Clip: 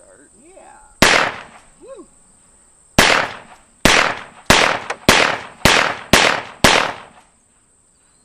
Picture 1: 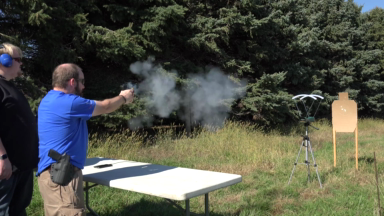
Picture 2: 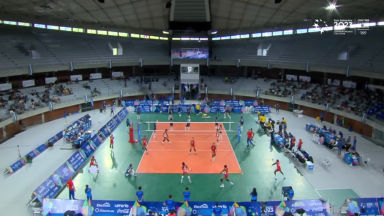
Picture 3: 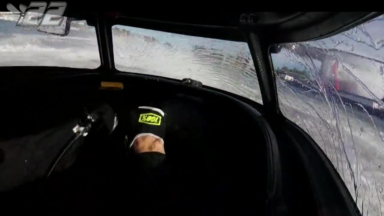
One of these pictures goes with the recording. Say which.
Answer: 1